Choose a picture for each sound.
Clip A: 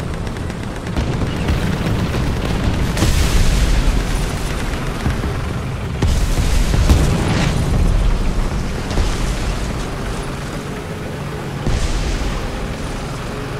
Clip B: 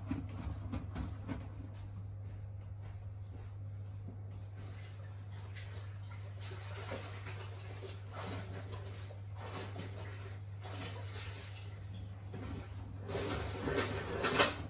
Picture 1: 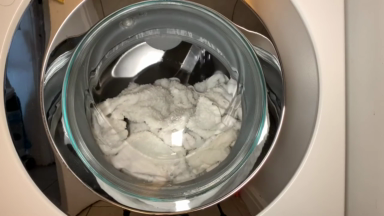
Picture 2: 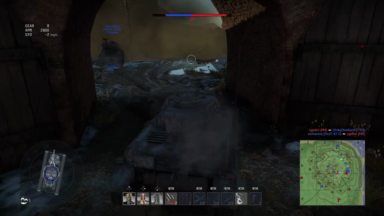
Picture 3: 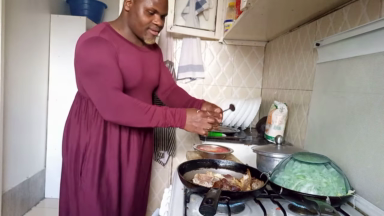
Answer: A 2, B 1